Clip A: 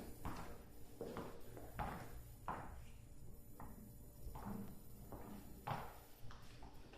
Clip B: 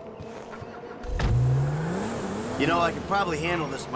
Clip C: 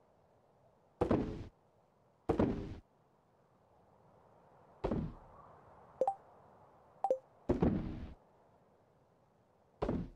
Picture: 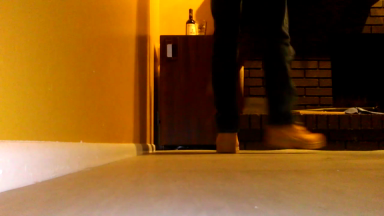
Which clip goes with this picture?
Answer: A